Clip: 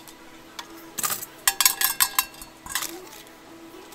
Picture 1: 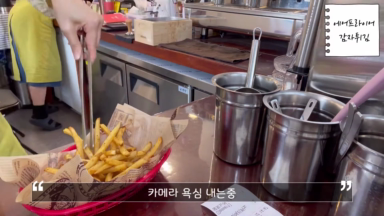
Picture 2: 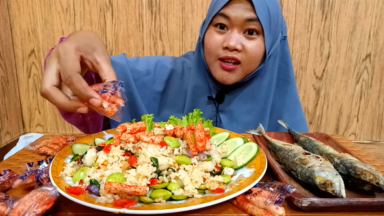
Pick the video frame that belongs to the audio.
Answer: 1